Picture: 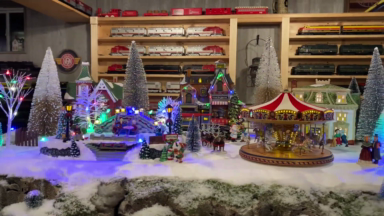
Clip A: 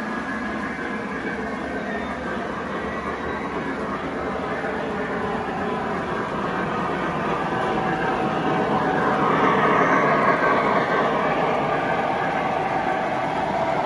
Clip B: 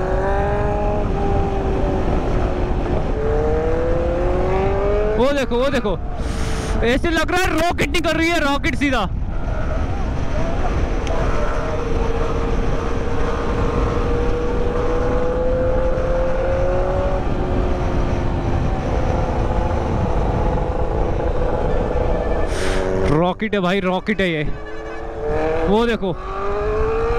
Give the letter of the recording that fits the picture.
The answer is A